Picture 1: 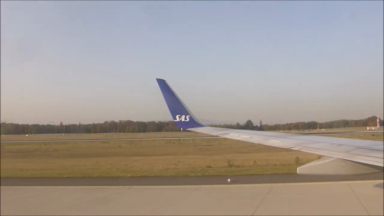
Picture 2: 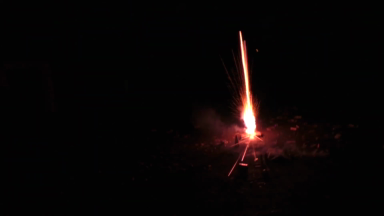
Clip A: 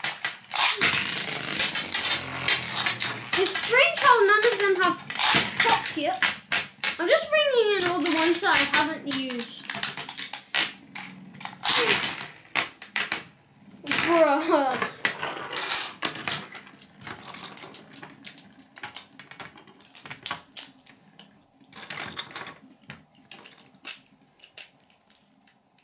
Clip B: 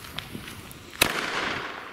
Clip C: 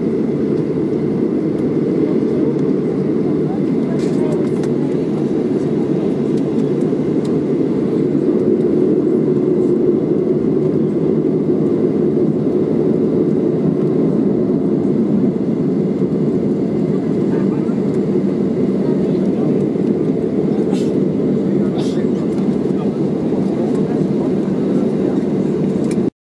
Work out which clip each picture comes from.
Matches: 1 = C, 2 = B